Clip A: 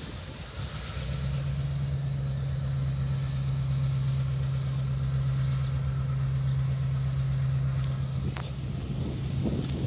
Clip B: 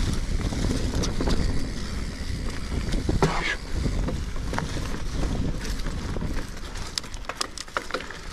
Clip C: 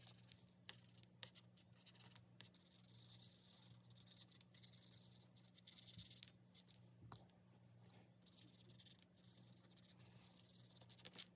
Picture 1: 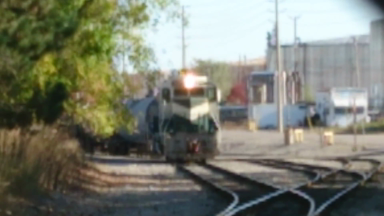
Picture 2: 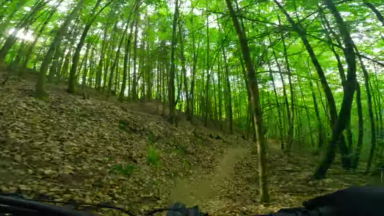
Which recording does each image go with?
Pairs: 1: A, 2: B